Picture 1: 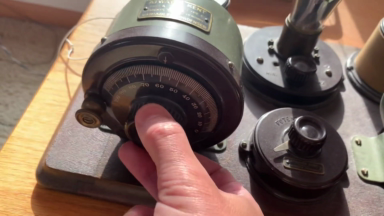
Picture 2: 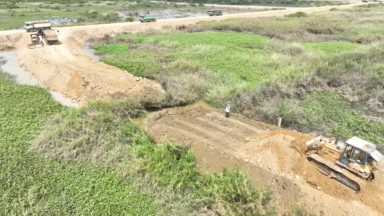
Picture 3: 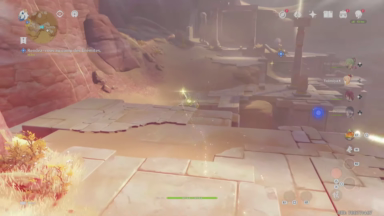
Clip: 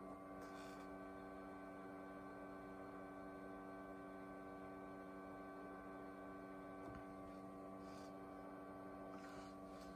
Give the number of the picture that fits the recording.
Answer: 1